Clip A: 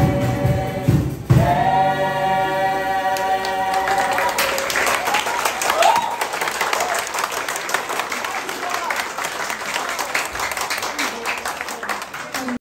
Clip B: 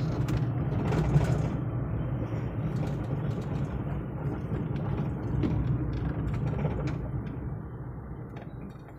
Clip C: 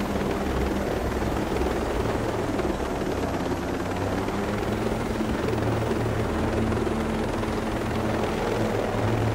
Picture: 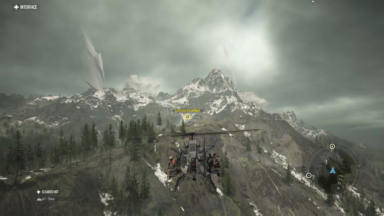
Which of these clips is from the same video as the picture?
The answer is C